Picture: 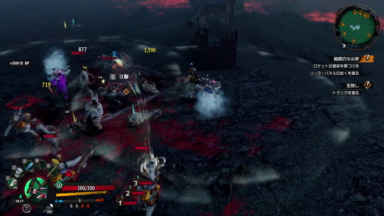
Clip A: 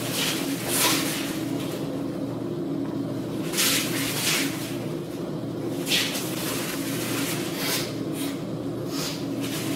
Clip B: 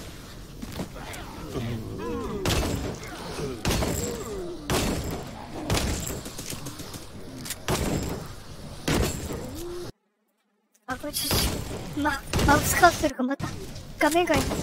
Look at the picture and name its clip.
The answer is B